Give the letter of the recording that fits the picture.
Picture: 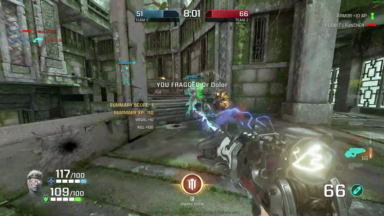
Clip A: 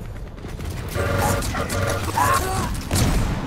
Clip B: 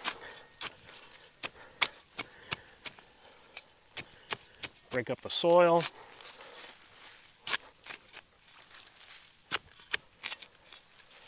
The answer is A